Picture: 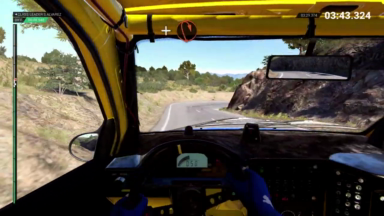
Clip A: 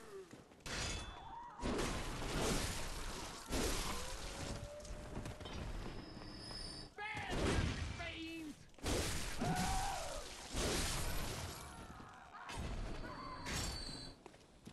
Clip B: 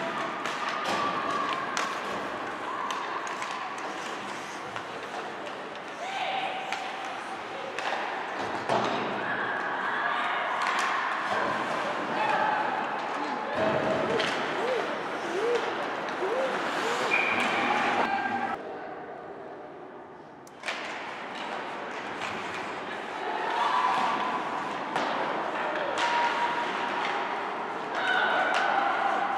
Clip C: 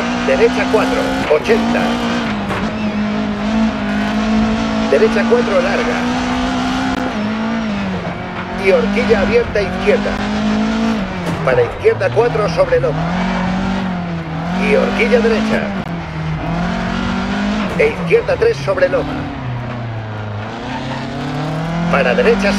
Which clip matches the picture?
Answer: C